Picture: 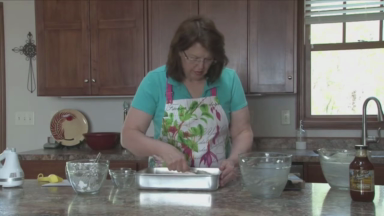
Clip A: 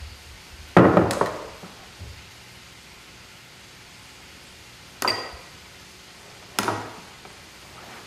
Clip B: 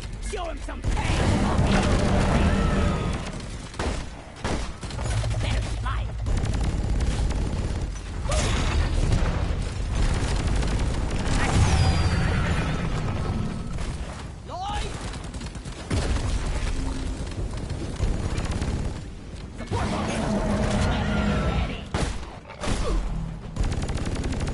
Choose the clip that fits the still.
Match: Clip A